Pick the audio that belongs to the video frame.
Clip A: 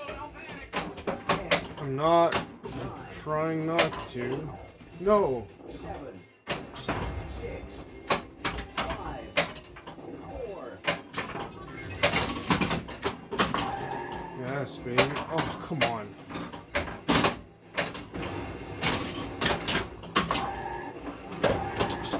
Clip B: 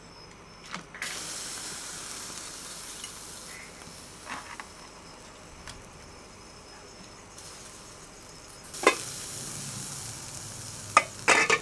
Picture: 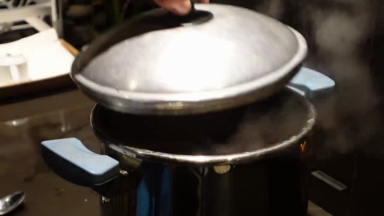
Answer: B